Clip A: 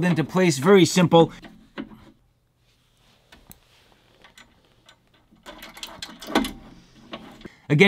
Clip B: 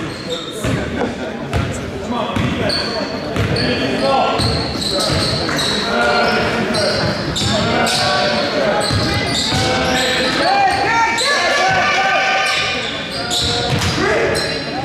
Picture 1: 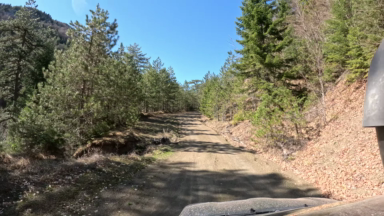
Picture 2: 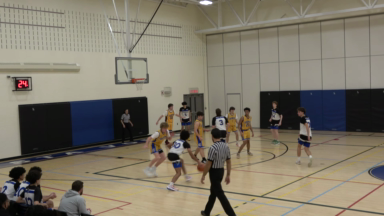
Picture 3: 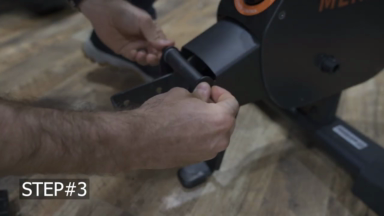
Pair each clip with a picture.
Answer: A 3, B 2